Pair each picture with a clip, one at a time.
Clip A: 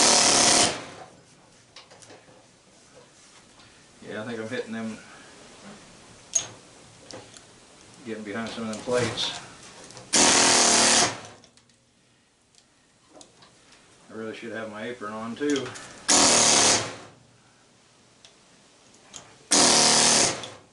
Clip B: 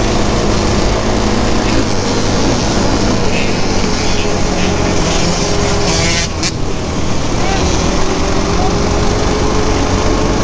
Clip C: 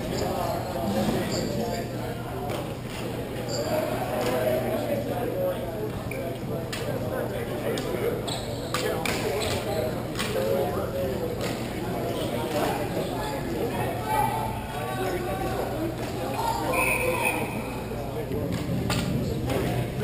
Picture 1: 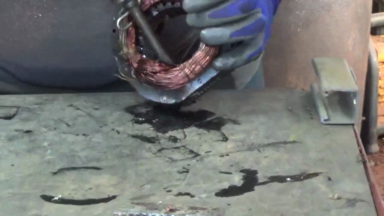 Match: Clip A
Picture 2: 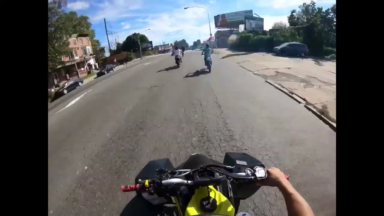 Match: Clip B